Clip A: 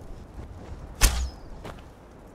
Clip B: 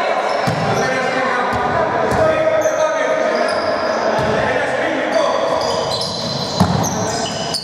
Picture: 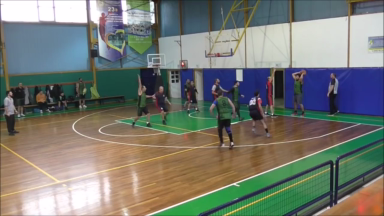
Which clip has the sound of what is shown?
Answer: B